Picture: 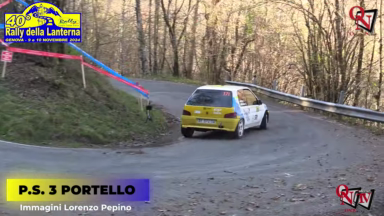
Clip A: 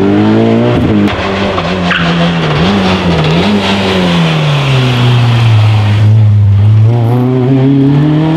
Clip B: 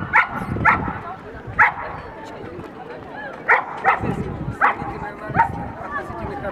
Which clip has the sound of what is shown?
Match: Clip A